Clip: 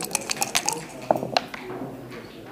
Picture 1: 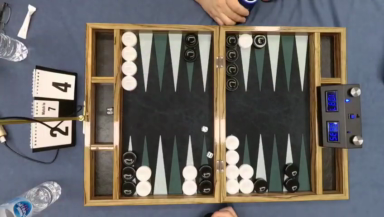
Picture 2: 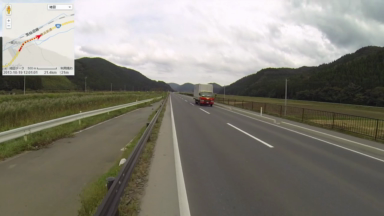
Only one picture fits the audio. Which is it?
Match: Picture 1